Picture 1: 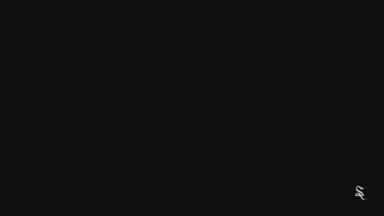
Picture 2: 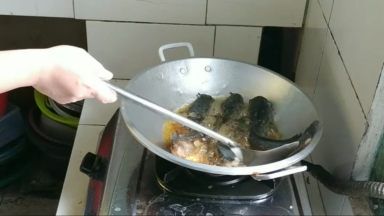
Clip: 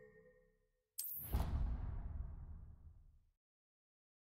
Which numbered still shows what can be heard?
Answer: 1